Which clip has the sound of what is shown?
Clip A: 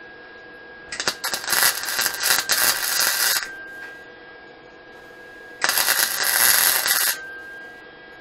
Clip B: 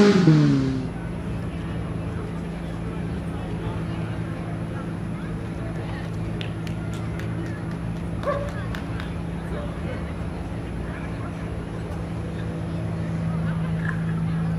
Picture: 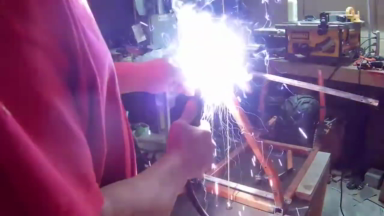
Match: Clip A